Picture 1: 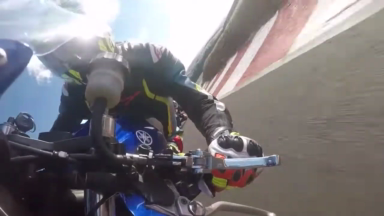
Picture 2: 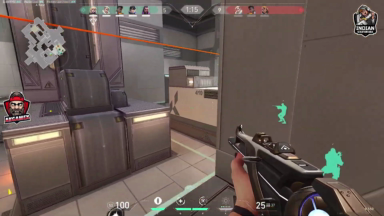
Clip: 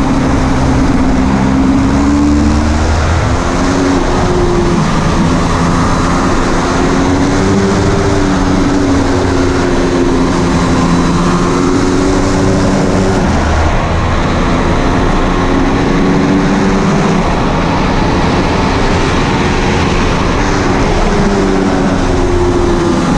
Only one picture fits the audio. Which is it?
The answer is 1